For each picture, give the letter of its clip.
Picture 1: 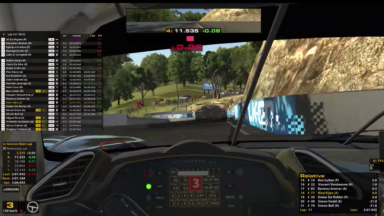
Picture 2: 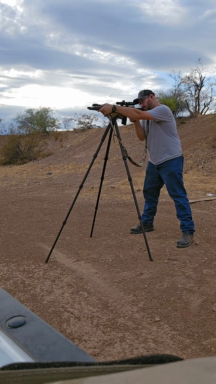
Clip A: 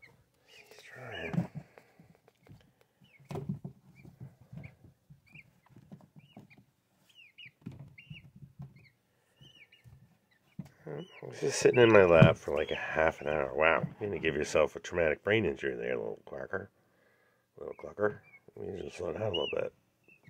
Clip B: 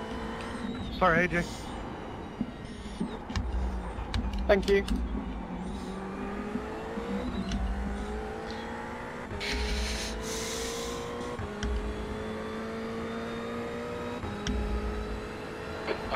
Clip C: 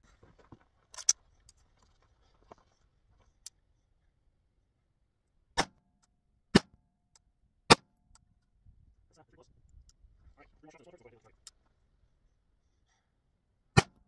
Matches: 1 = B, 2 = C